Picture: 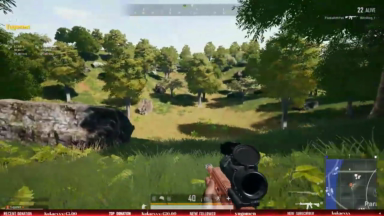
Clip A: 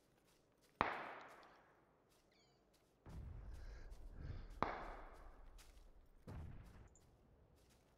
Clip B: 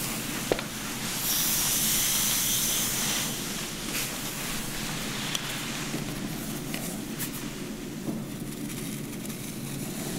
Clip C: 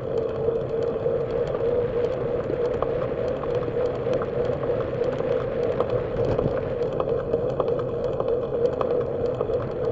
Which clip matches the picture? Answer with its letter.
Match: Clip A